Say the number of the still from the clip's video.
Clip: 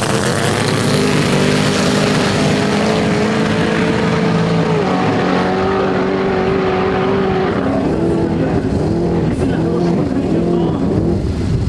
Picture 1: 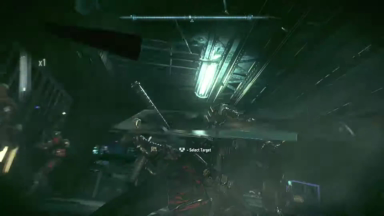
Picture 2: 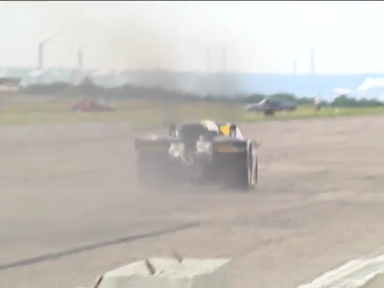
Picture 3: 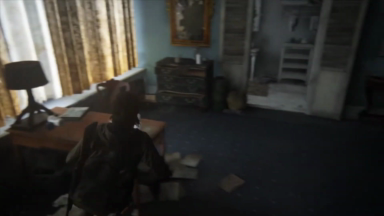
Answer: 2